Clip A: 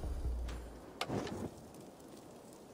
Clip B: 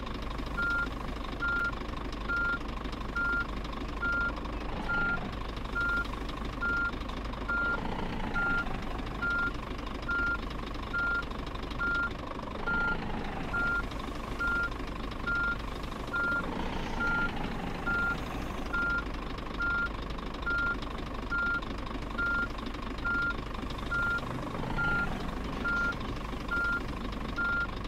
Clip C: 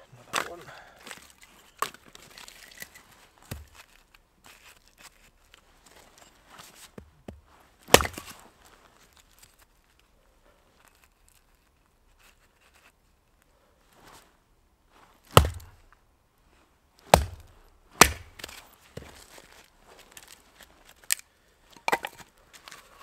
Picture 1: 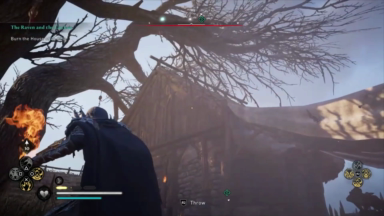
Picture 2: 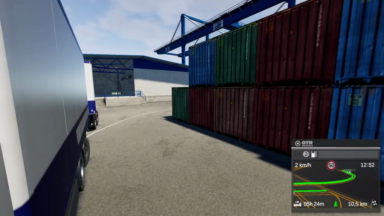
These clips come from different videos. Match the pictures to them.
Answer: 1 A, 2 B